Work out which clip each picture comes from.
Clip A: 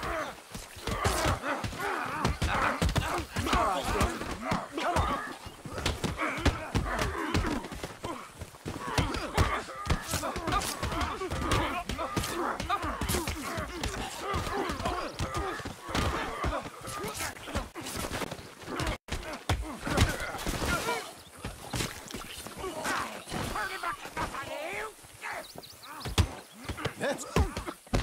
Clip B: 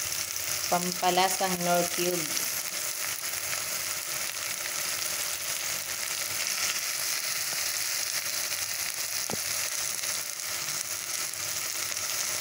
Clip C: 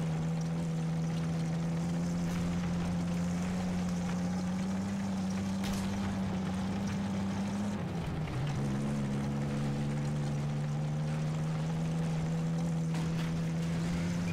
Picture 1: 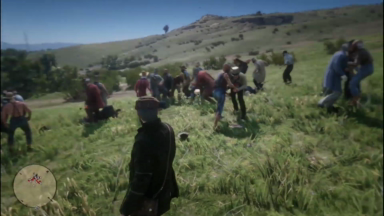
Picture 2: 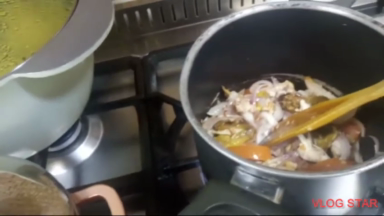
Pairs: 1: A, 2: B